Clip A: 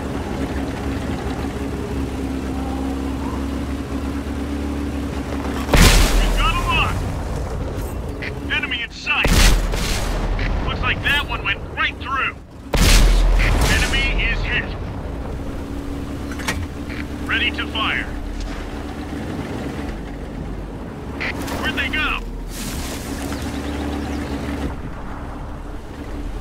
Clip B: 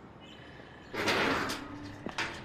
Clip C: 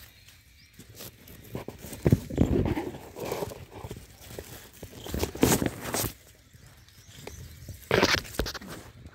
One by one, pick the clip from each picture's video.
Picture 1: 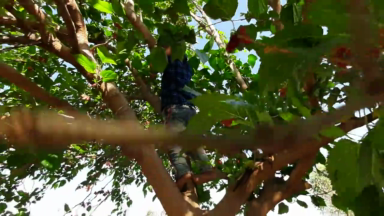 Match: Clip C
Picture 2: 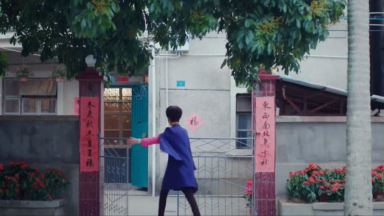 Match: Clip B